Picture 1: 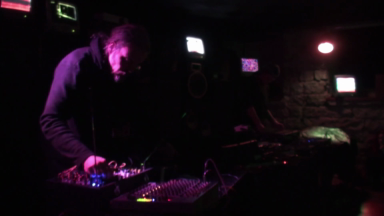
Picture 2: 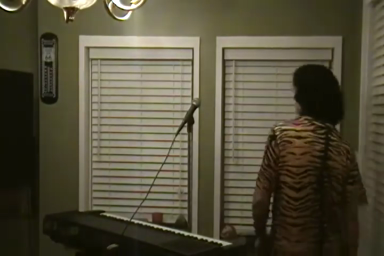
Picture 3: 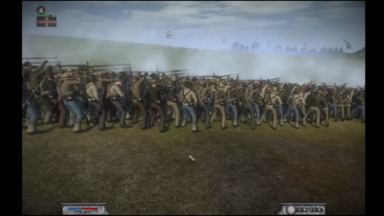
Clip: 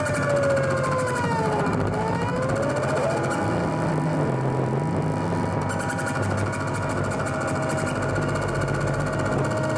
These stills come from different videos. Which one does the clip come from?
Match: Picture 1